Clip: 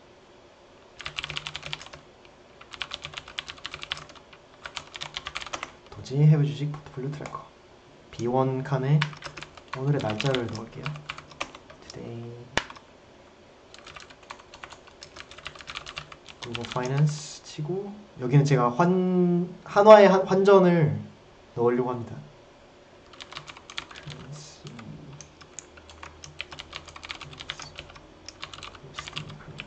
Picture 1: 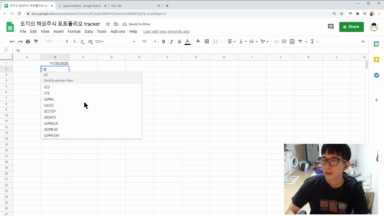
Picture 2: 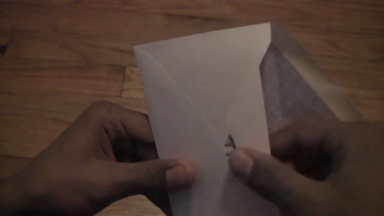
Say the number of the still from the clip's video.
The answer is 1